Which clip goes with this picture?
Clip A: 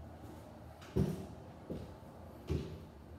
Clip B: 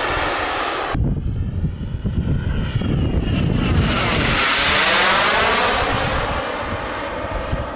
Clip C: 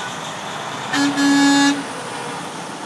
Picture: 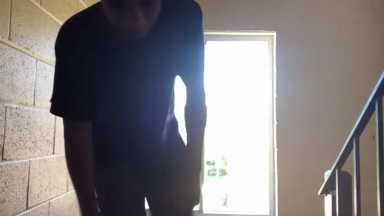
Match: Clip A